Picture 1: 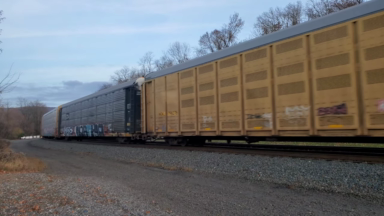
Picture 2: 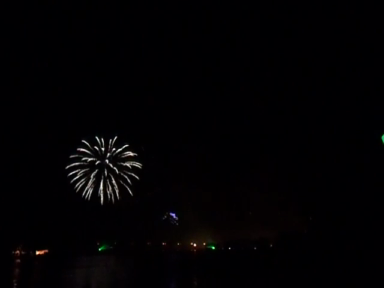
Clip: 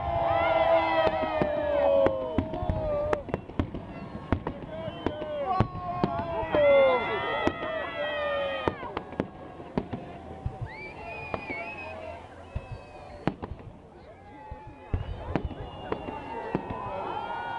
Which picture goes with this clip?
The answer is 2